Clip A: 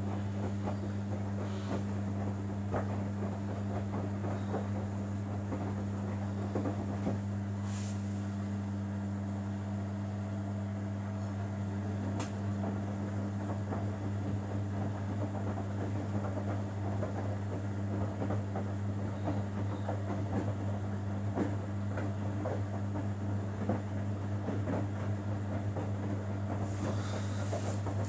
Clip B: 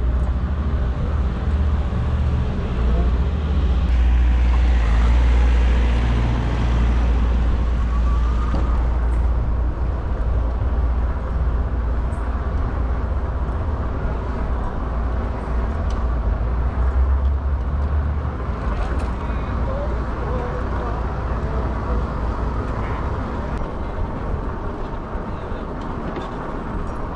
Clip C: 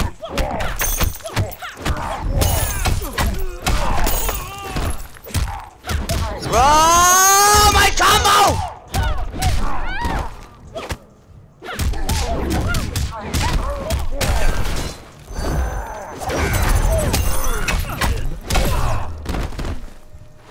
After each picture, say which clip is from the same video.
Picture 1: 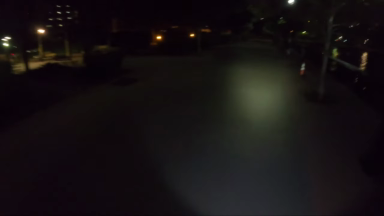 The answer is B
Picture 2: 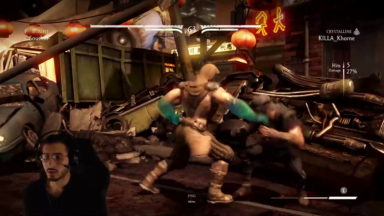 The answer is C